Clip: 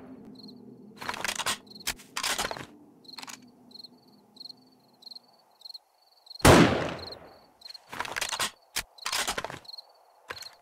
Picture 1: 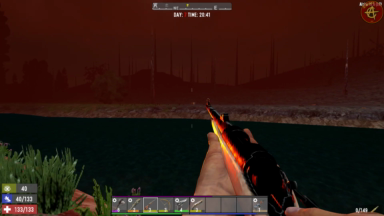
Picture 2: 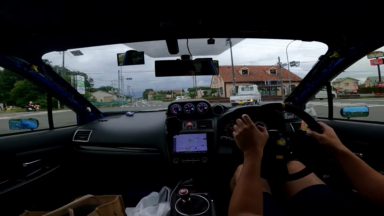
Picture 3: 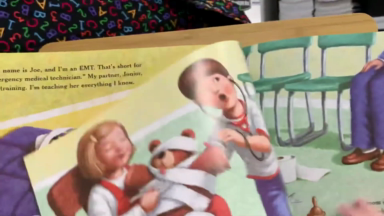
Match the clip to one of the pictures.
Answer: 1